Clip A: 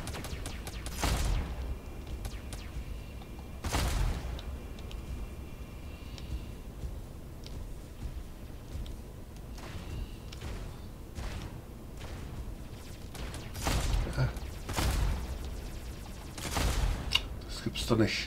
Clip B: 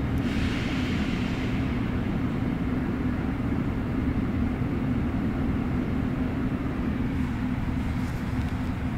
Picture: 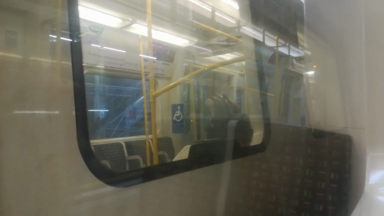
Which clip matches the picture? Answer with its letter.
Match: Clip B